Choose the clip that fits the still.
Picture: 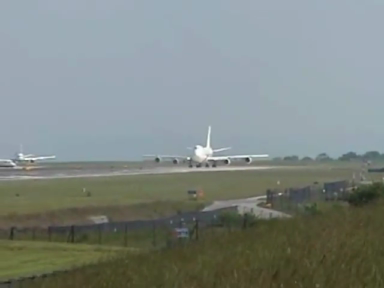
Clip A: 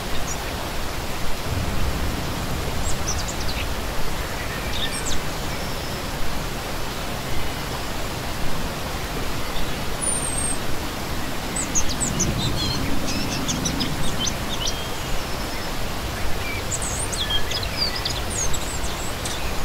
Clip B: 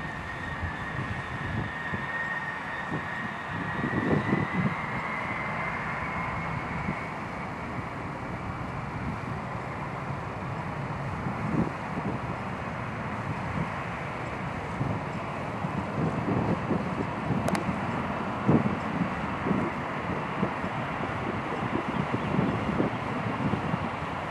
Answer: B